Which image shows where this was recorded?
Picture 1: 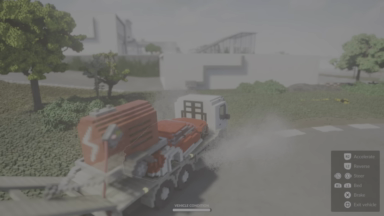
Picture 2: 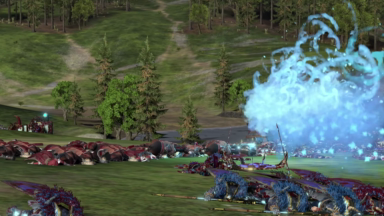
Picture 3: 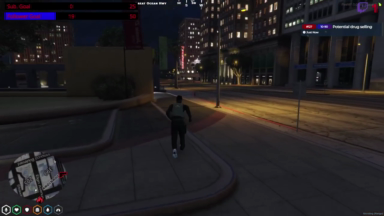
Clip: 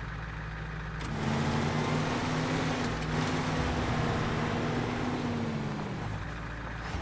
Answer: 1